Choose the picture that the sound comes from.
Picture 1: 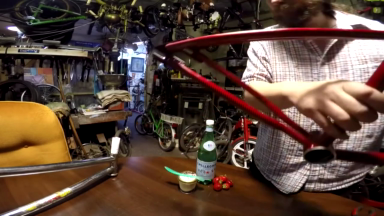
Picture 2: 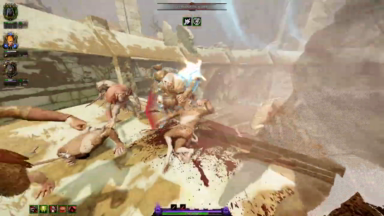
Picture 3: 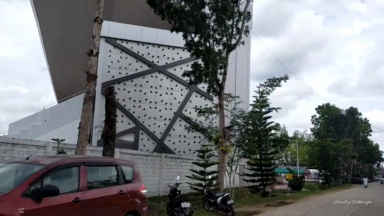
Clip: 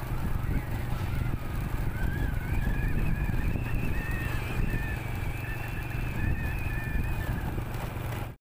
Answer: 3